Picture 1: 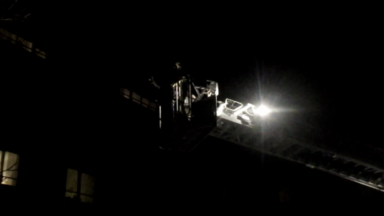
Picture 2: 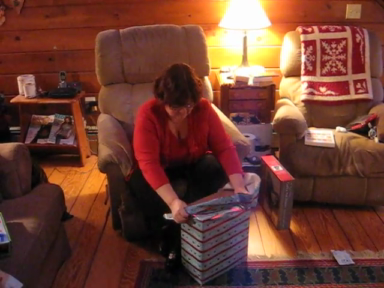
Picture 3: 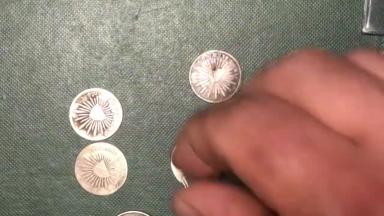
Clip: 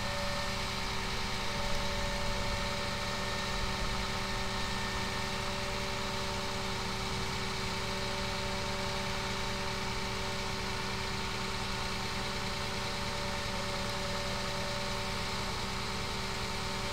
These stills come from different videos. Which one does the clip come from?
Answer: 1